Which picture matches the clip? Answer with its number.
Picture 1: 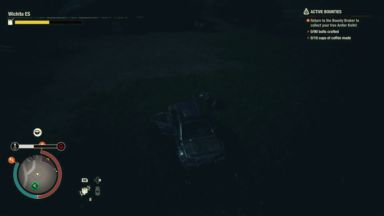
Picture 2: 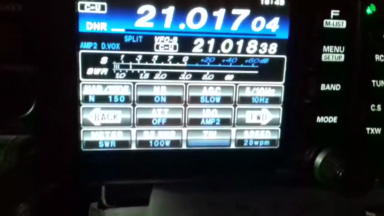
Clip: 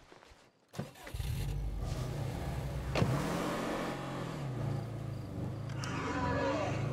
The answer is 1